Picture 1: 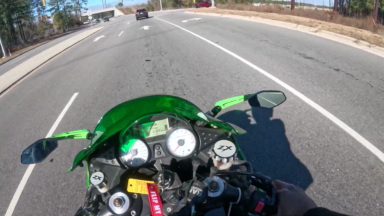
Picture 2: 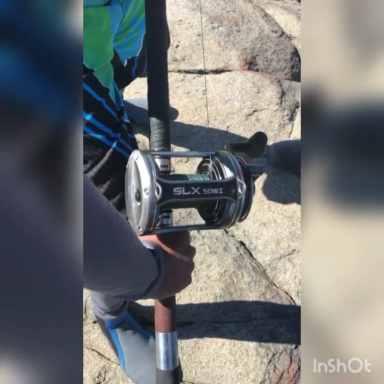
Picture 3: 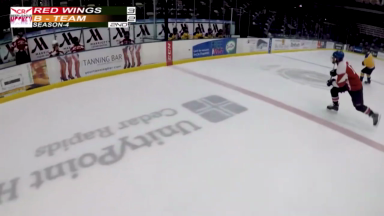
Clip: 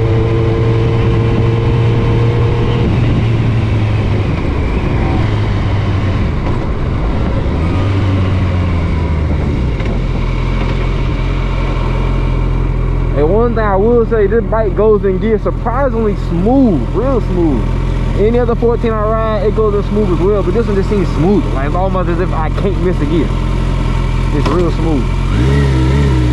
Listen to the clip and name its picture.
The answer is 1